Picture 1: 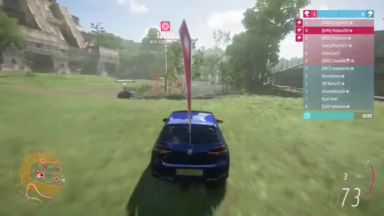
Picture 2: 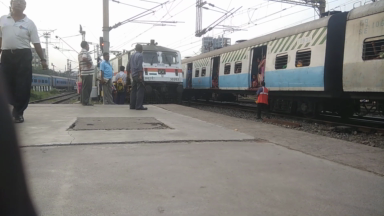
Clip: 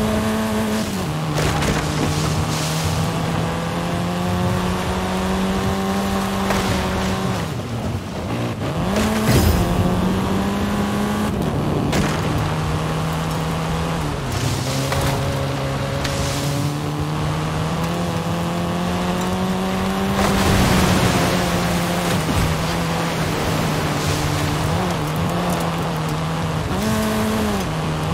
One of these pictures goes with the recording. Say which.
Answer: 1